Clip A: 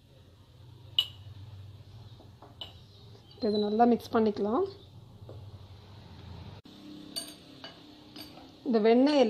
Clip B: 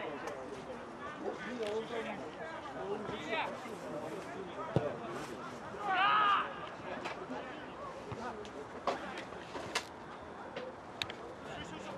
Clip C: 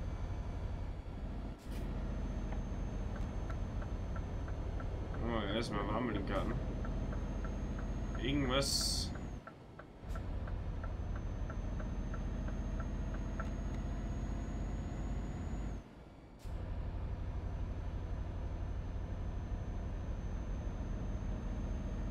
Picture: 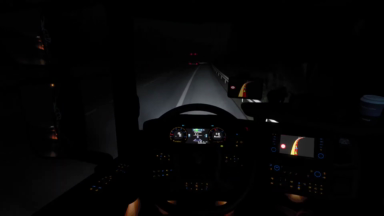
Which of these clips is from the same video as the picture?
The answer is C